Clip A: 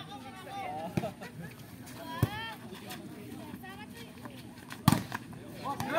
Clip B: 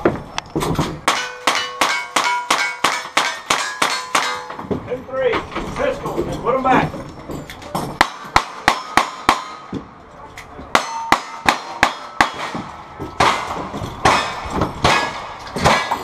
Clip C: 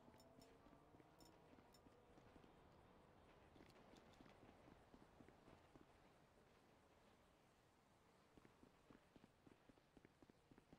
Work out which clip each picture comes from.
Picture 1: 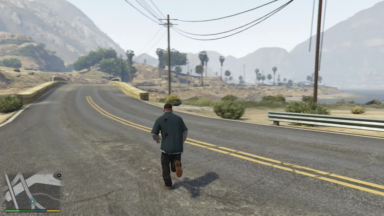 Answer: C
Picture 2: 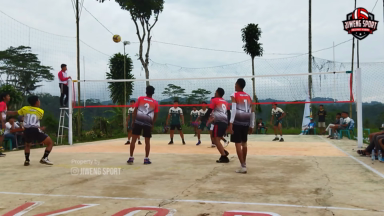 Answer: A